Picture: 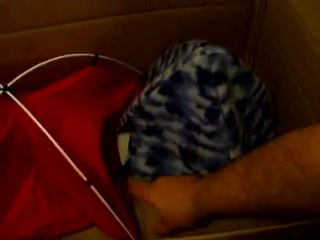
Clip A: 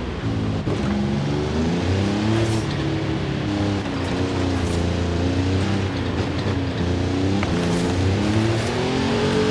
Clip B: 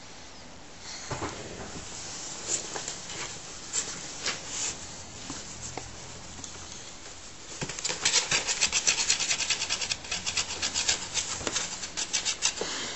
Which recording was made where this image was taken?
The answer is B